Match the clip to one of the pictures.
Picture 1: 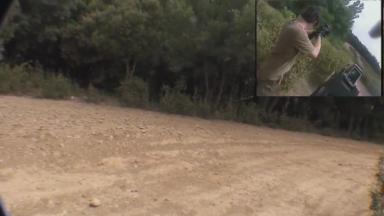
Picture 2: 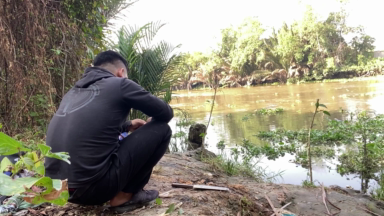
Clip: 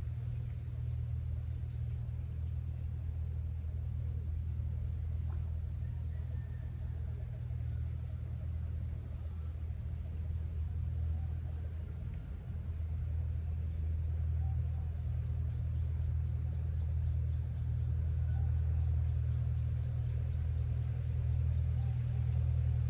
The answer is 2